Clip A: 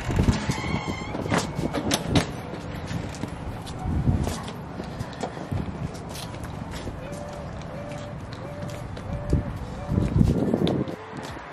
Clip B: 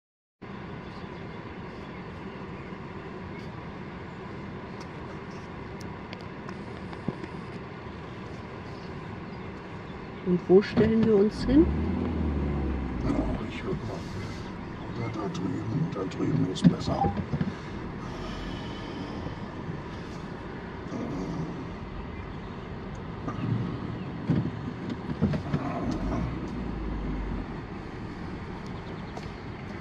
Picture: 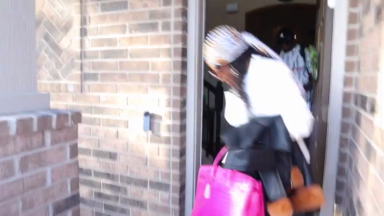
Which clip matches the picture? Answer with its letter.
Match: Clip A